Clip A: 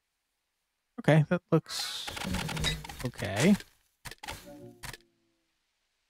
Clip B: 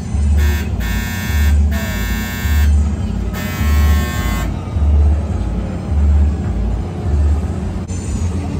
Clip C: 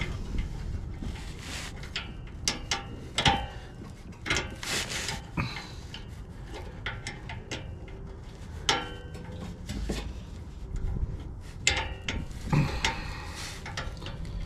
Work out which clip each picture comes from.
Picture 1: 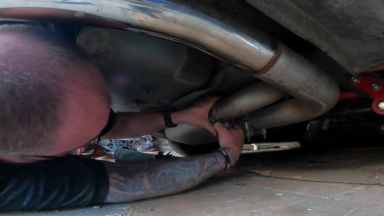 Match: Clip C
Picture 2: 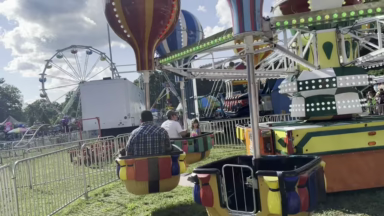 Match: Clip B